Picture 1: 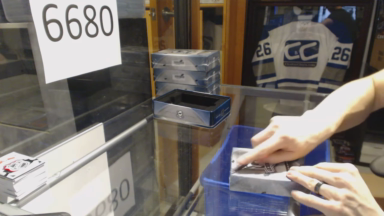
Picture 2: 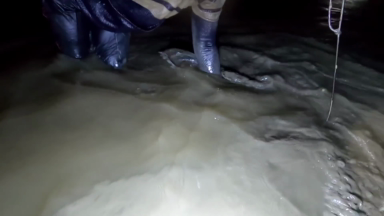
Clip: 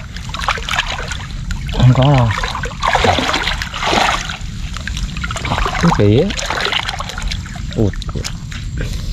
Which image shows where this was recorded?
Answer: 2